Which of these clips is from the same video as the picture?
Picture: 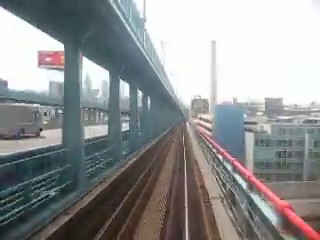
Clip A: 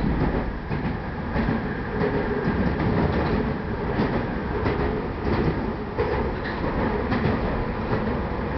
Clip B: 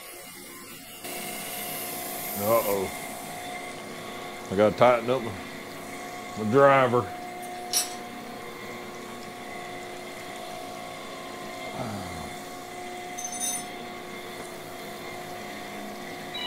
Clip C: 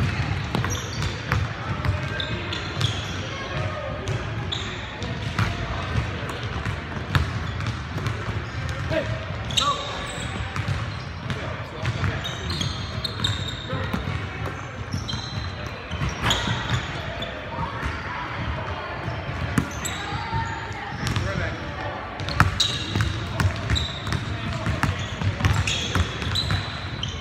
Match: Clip A